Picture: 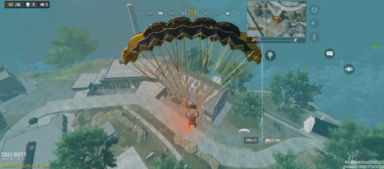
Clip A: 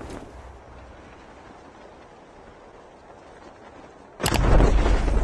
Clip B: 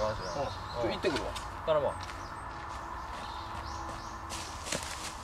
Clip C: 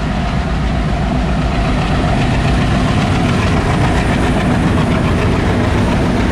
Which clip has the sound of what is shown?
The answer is A